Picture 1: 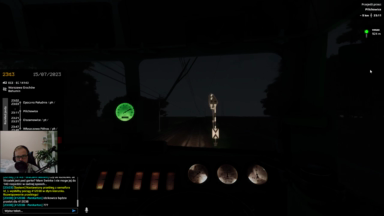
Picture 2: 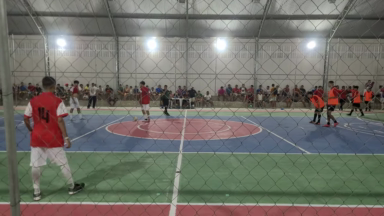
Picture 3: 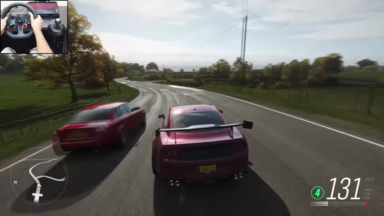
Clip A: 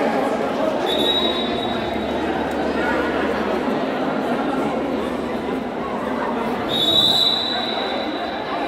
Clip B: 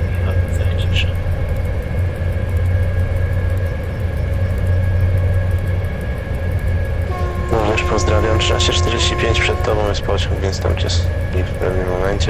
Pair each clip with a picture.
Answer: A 2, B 1